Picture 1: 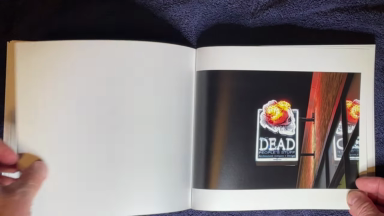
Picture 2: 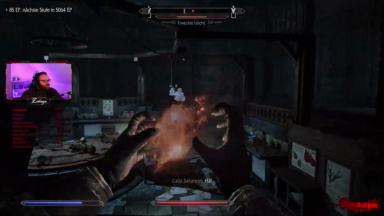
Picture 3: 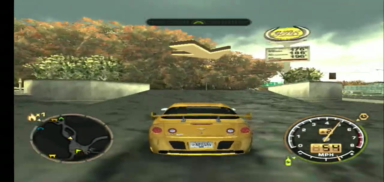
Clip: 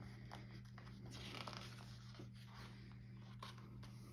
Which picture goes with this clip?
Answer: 1